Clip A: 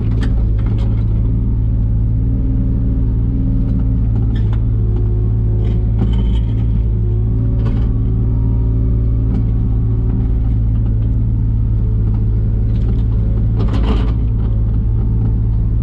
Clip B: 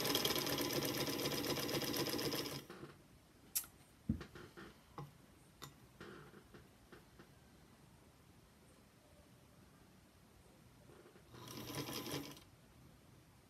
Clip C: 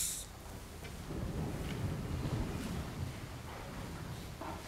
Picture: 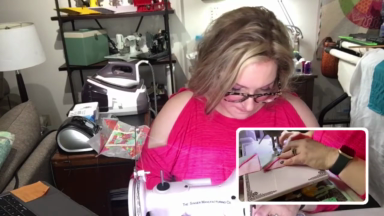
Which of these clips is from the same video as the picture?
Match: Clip B